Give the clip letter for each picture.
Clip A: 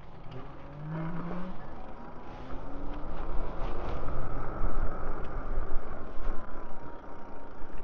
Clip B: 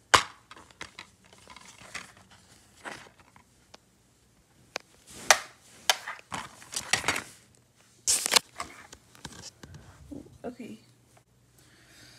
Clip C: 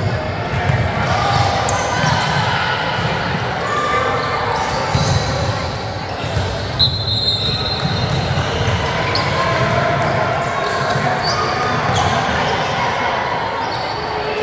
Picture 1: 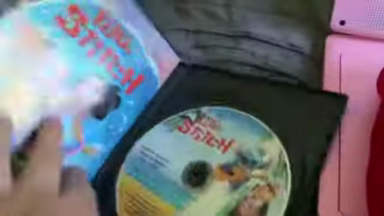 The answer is B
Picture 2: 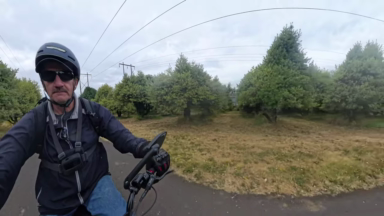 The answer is A